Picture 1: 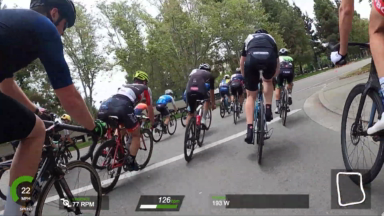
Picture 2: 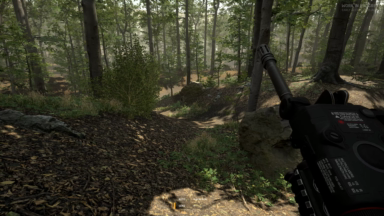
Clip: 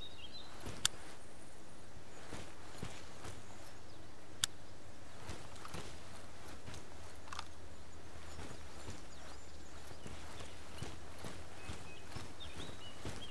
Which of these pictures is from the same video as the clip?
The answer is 2